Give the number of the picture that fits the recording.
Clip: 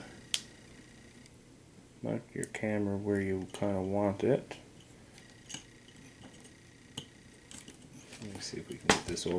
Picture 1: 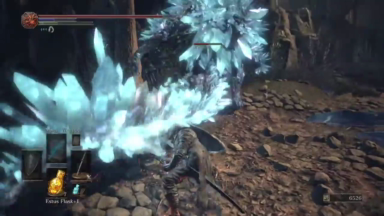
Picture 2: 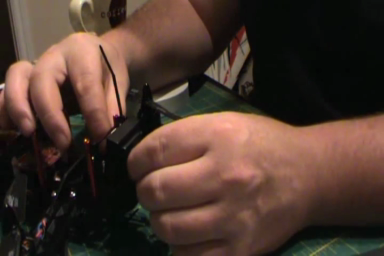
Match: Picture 2